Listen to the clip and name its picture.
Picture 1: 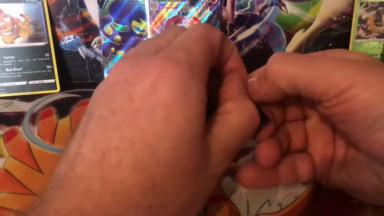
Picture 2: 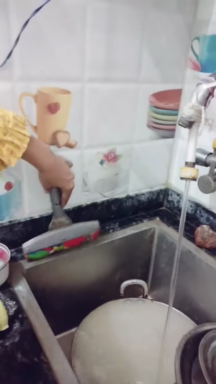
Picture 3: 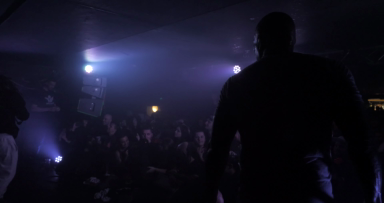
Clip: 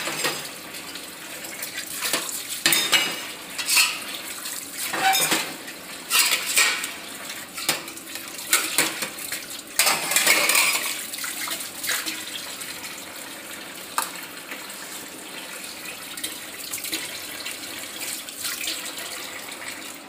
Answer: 2